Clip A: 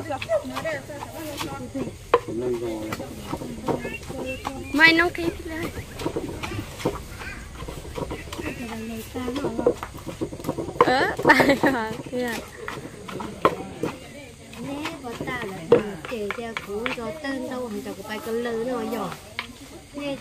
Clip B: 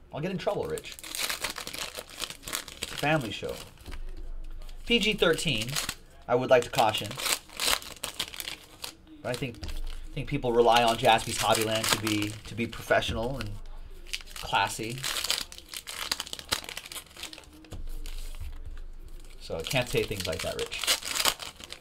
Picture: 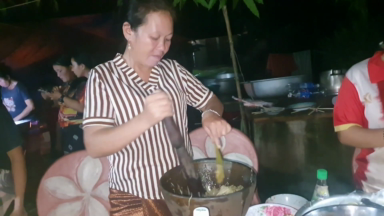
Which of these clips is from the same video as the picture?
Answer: A